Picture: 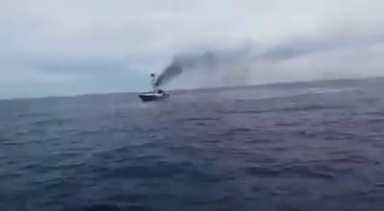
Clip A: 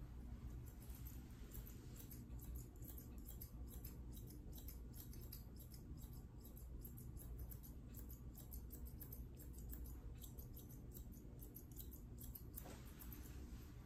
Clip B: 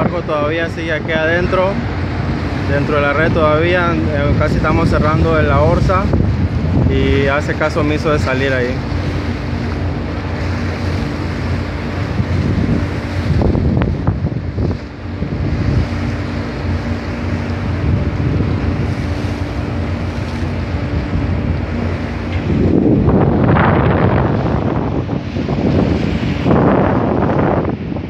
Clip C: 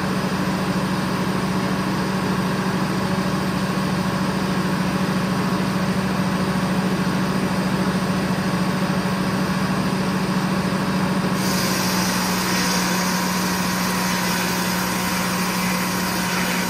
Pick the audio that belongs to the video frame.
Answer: B